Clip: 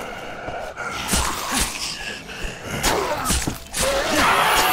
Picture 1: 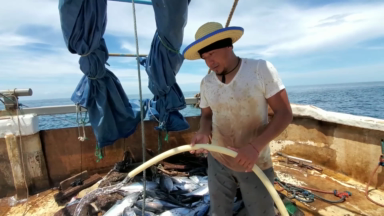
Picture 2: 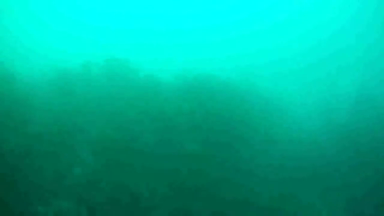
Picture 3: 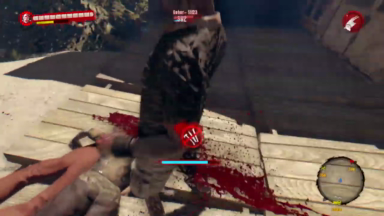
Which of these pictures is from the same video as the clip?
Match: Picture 3